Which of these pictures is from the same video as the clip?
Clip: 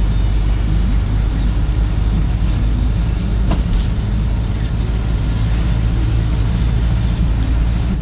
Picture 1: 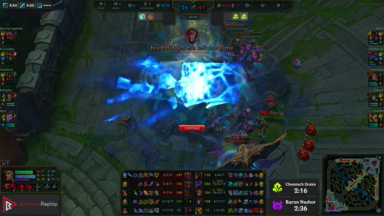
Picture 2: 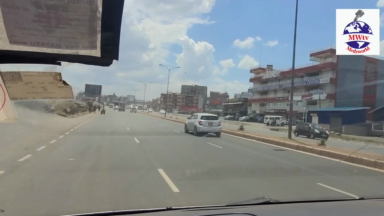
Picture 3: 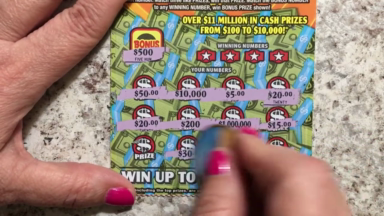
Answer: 2